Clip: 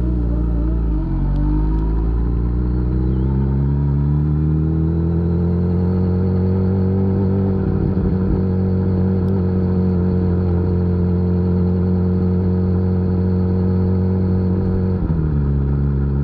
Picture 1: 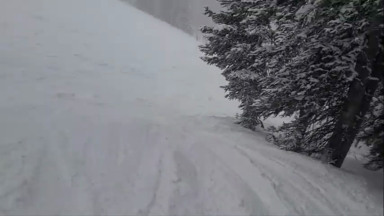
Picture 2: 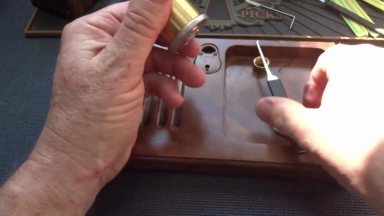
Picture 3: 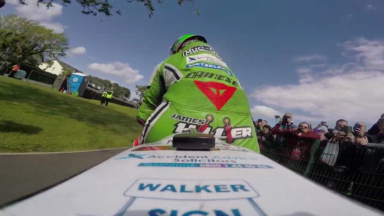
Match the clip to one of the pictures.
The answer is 3